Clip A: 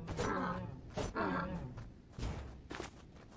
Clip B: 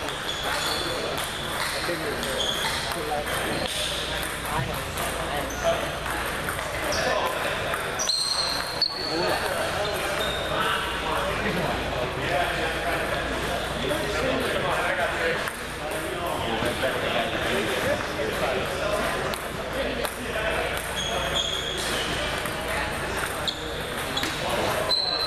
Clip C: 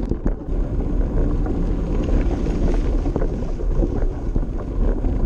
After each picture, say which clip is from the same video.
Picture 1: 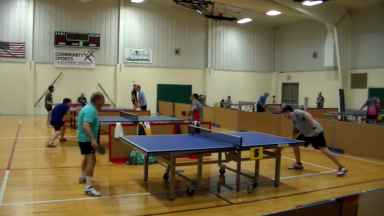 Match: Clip B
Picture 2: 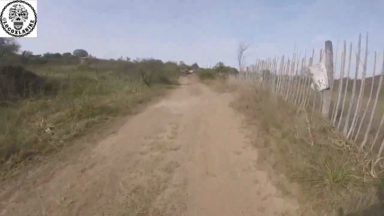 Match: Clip C